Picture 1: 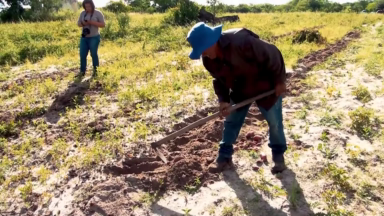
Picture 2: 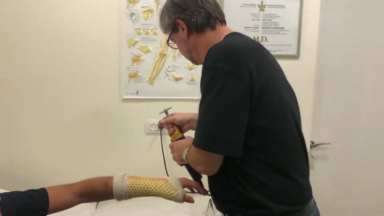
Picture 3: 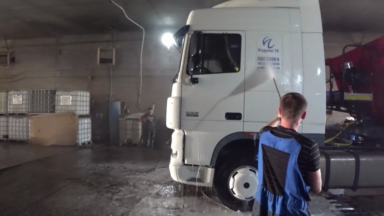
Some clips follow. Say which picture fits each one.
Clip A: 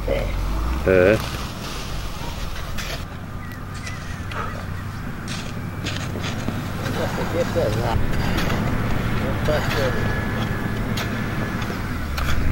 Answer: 1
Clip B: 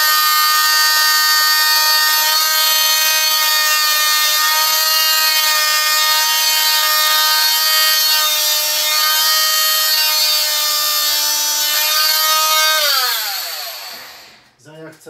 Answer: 2